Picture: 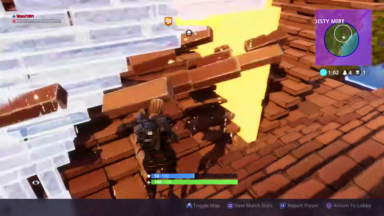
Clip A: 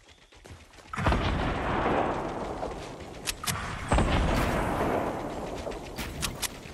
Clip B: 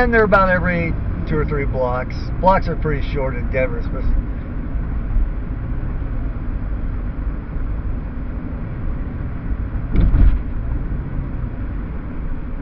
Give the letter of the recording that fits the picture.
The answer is A